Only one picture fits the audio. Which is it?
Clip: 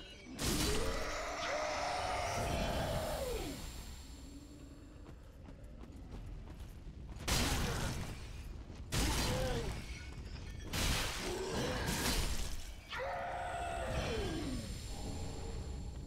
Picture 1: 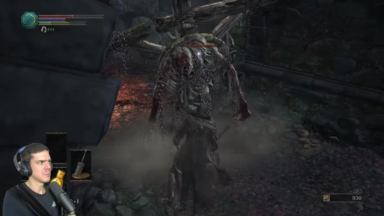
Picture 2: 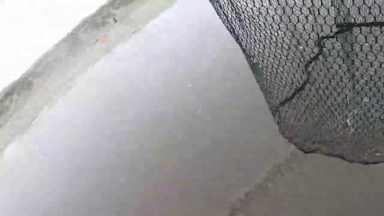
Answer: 1